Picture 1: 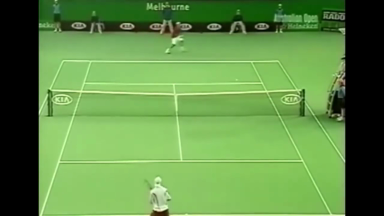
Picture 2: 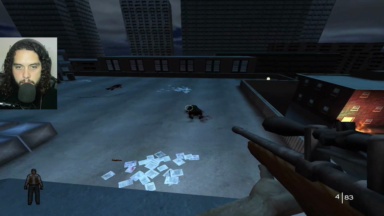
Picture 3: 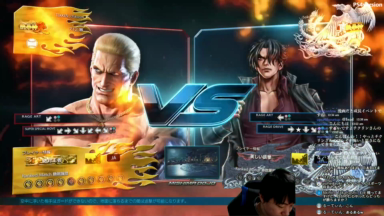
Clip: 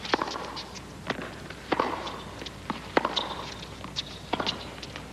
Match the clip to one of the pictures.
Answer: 1